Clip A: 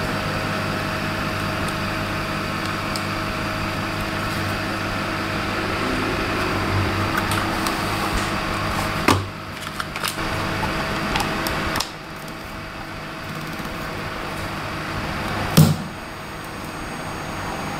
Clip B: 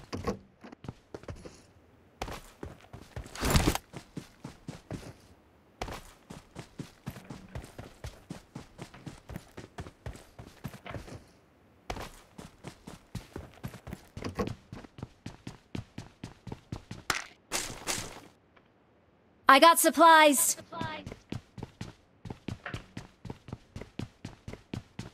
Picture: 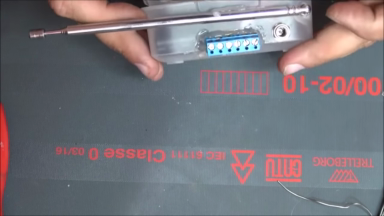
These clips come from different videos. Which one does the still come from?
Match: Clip A